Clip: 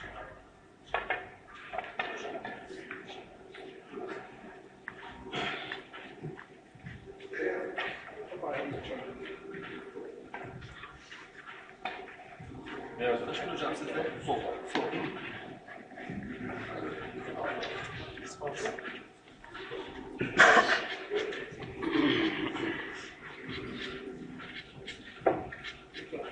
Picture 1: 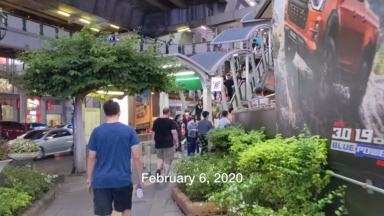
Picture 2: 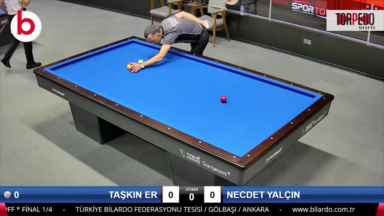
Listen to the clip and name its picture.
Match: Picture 2